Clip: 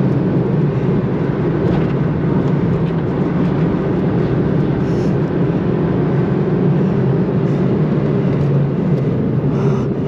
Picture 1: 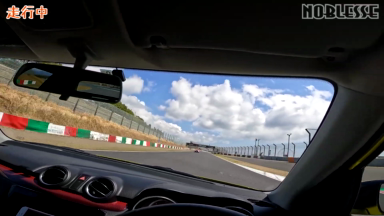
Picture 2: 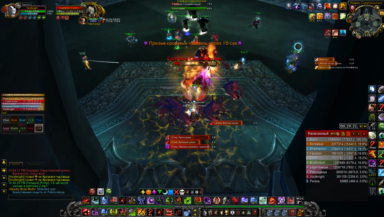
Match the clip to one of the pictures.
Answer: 1